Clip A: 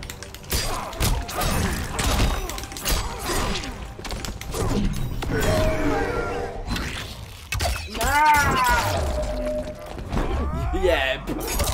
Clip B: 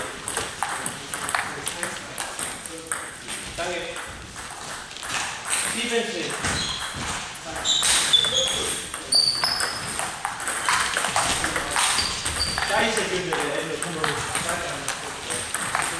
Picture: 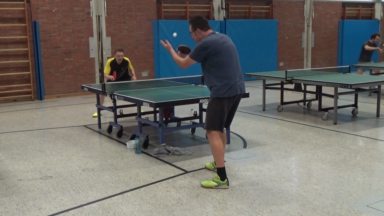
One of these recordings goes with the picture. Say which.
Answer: B